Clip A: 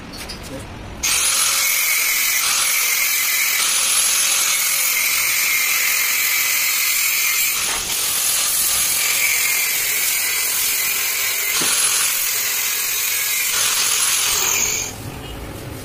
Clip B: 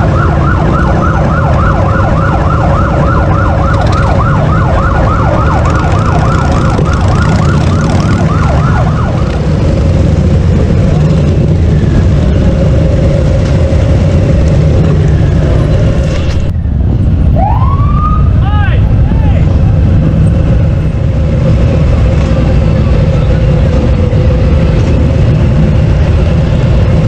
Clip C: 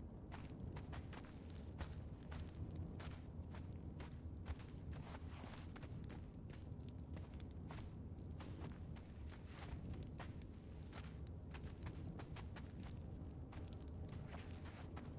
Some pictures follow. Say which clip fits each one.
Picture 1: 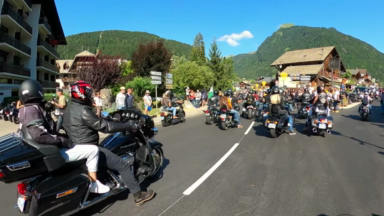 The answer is B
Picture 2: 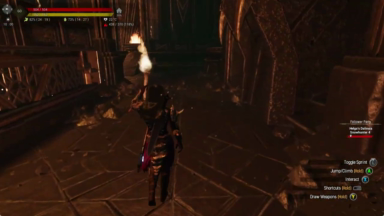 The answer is C